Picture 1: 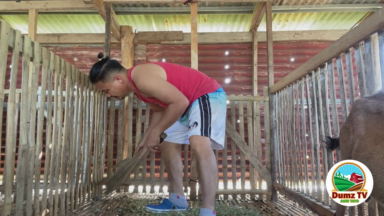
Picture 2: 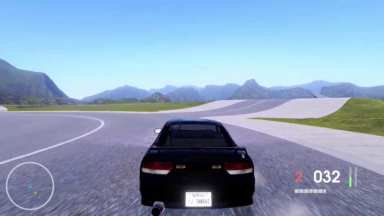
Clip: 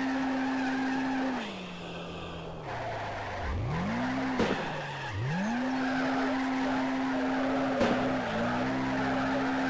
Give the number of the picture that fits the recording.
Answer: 2